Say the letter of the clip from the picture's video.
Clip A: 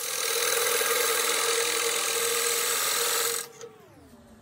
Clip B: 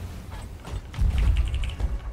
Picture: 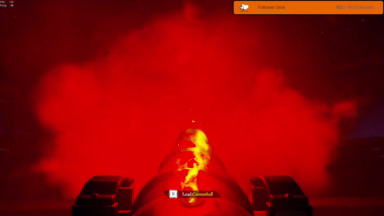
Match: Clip B